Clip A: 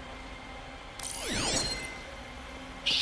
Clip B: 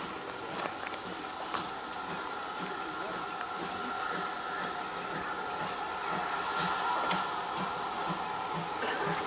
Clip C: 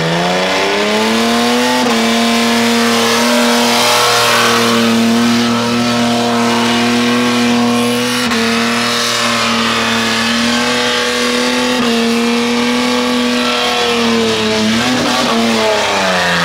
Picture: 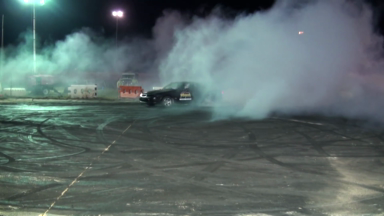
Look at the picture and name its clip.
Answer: C